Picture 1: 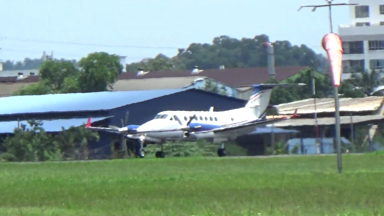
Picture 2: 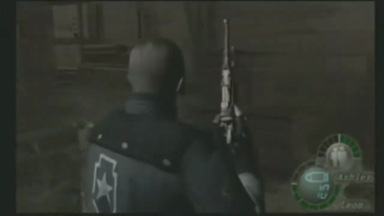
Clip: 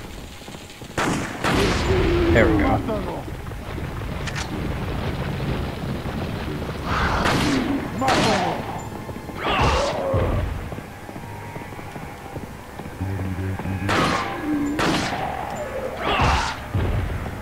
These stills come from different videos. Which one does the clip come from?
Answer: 2